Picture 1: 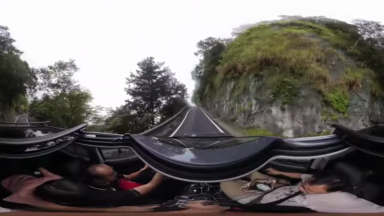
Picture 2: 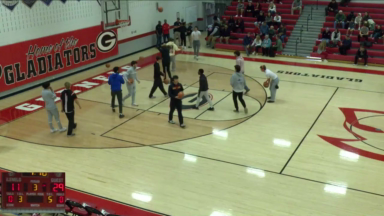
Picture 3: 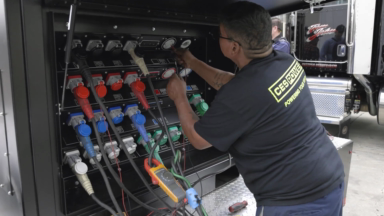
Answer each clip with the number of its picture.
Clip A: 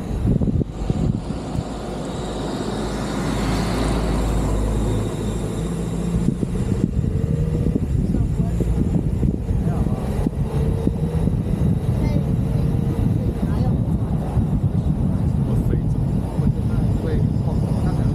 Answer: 1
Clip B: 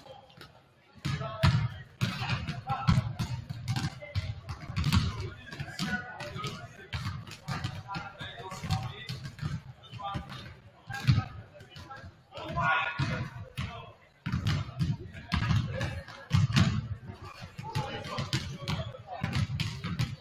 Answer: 2